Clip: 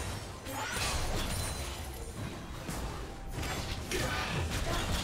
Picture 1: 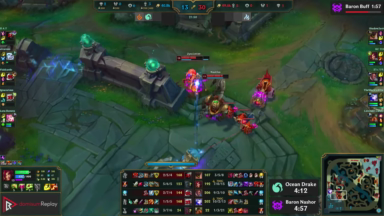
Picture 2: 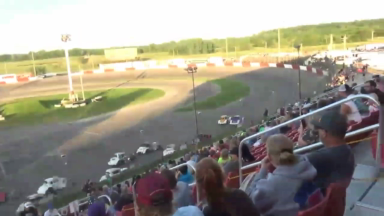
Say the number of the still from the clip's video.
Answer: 1